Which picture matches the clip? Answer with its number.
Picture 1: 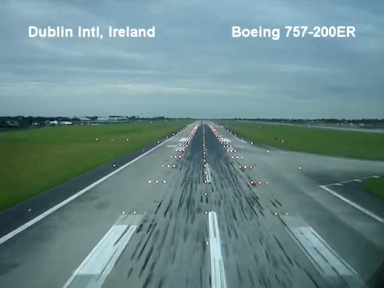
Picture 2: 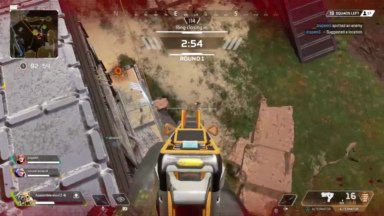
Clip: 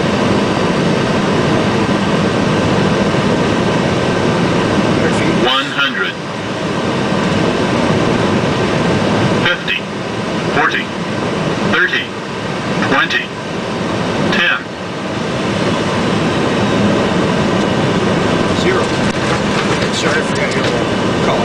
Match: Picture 1